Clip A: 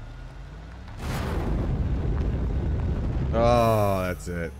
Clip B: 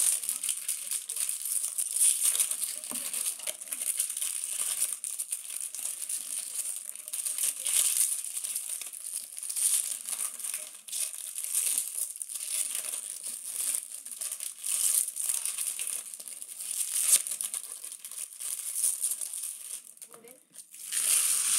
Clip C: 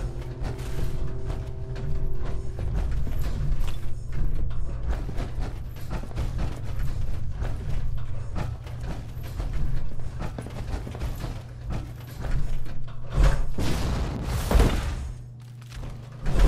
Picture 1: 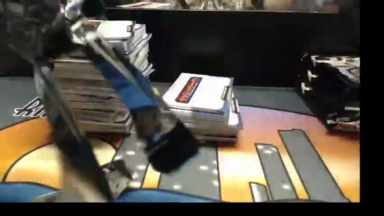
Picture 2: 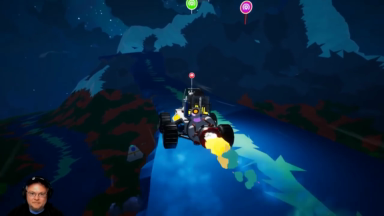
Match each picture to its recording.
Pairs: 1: B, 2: A